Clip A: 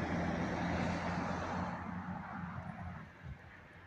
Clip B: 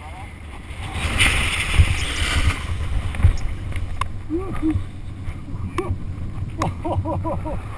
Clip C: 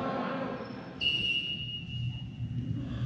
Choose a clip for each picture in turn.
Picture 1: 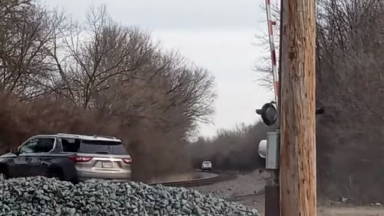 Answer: A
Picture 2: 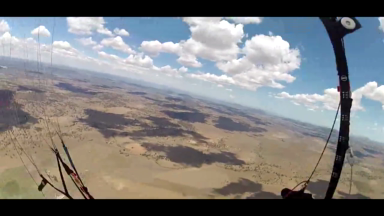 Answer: B